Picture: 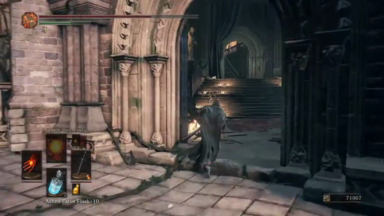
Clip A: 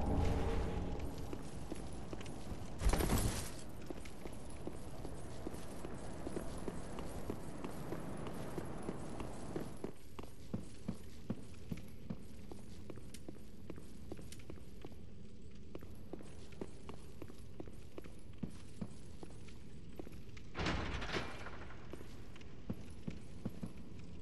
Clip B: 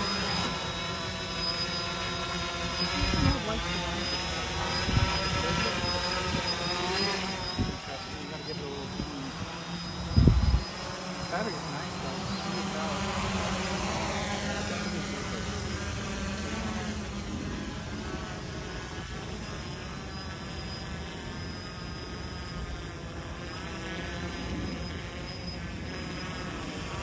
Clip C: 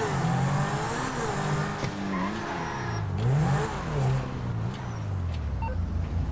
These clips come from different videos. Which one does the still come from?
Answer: A